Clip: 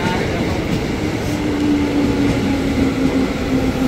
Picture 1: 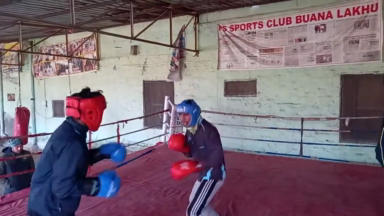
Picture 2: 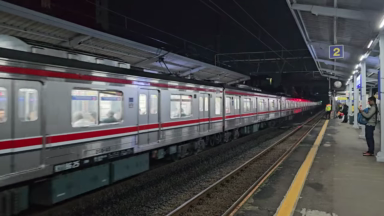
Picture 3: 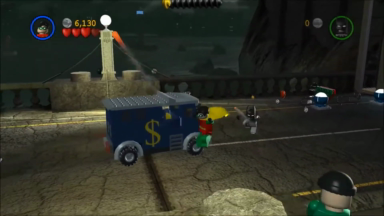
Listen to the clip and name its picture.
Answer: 2